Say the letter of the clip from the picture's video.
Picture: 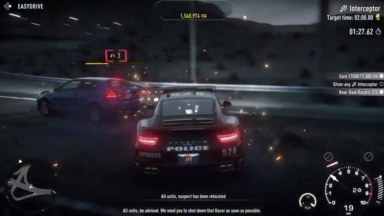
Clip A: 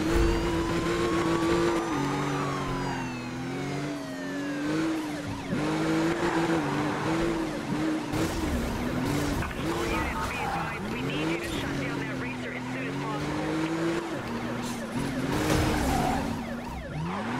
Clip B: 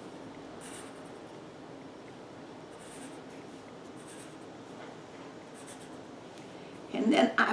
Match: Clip A